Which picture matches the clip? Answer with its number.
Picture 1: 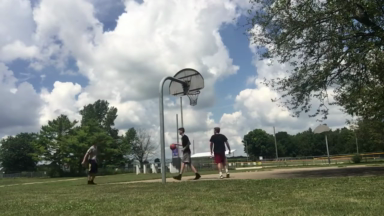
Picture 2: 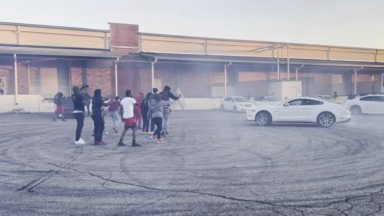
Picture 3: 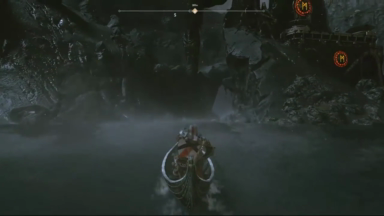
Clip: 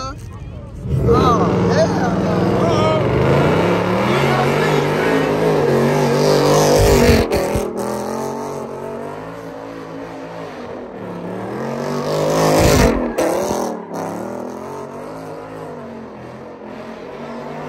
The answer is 2